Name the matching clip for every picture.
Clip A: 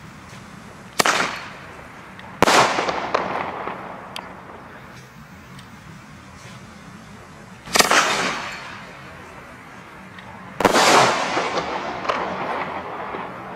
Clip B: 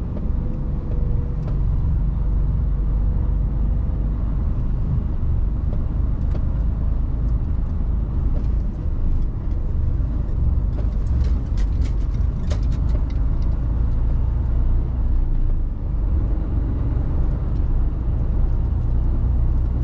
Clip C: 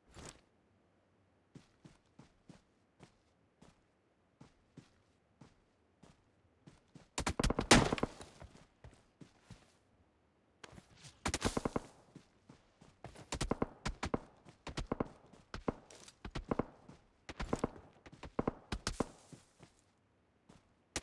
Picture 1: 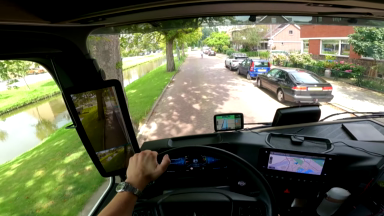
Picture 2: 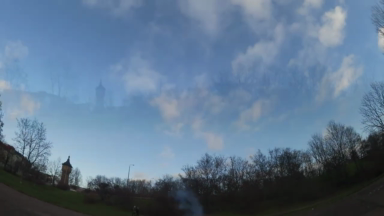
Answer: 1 B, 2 A